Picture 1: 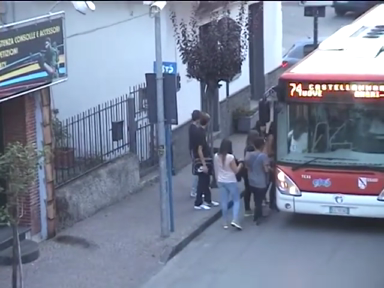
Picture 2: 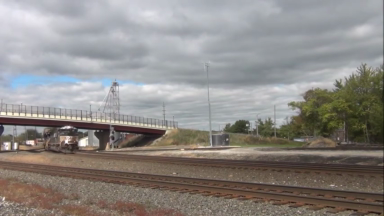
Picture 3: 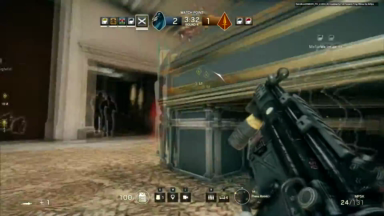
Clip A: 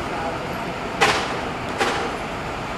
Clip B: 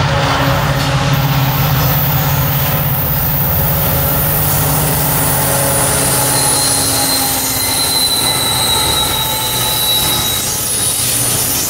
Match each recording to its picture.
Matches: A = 1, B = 2